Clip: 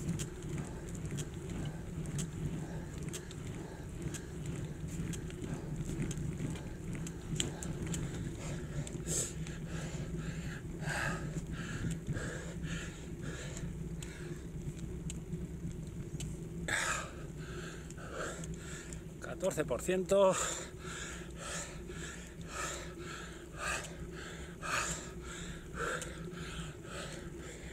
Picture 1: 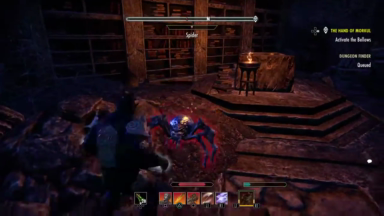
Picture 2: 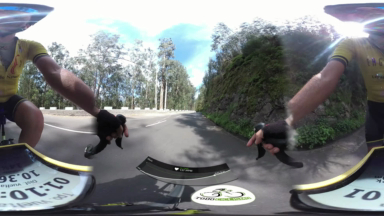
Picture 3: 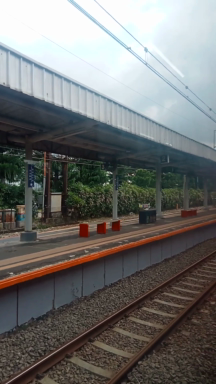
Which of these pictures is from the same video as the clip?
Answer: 2